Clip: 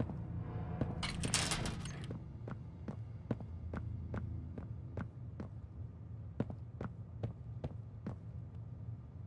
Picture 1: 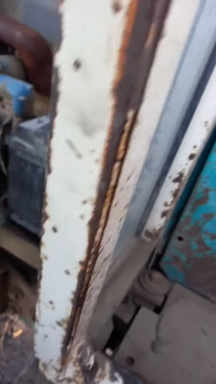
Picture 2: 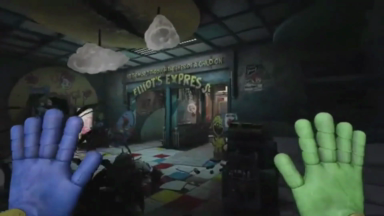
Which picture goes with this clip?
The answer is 2